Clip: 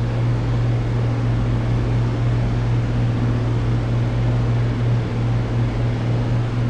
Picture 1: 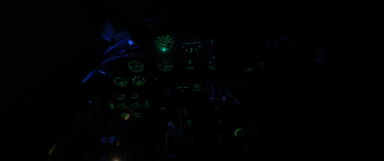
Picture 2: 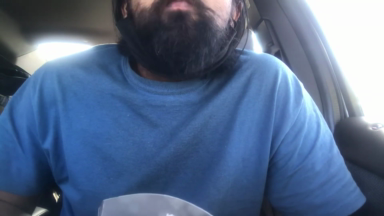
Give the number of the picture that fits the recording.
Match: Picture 1